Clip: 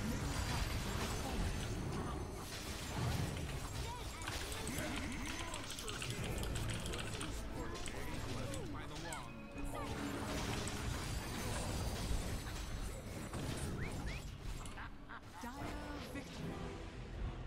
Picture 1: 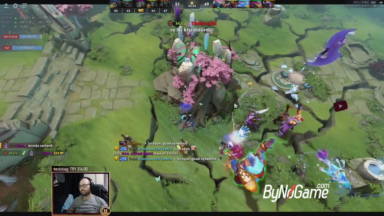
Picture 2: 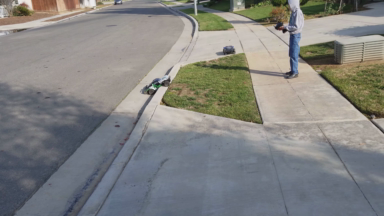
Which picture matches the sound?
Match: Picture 1